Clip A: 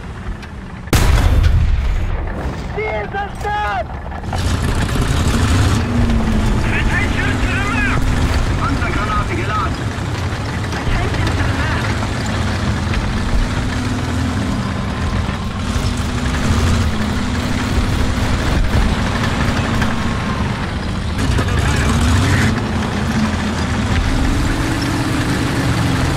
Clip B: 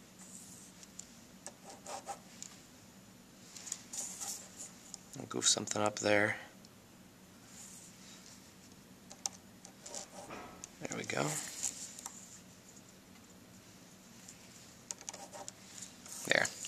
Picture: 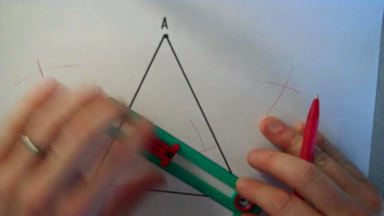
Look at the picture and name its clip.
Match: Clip B